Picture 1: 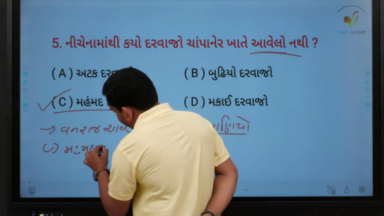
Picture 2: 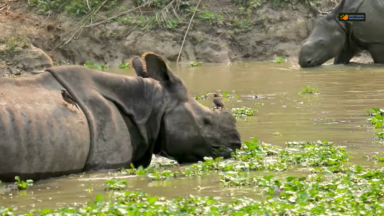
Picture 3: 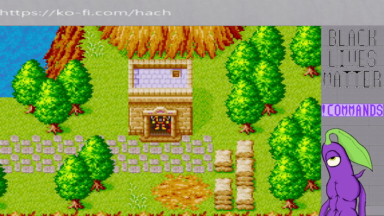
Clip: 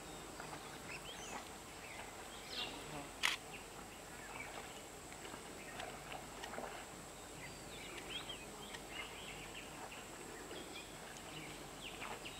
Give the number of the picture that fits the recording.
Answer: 2